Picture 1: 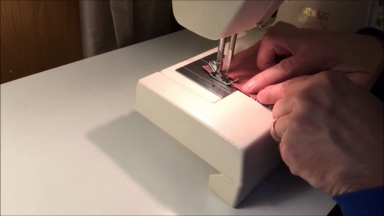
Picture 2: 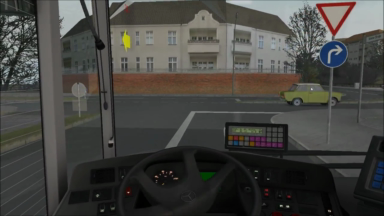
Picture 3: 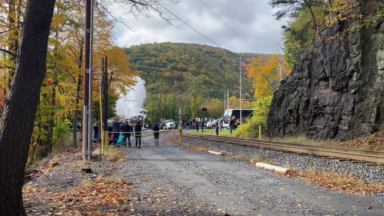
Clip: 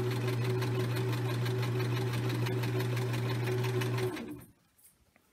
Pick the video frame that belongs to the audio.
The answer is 1